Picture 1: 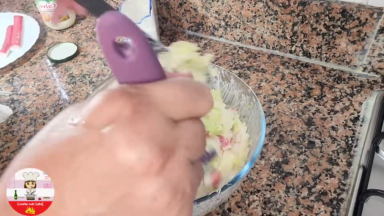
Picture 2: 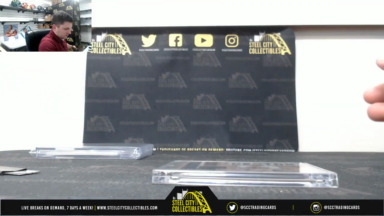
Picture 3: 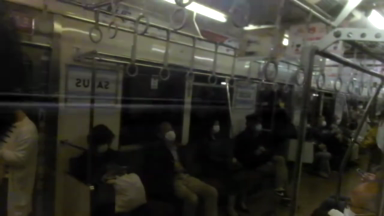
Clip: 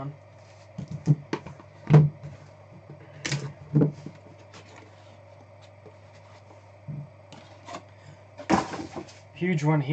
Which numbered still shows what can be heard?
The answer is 2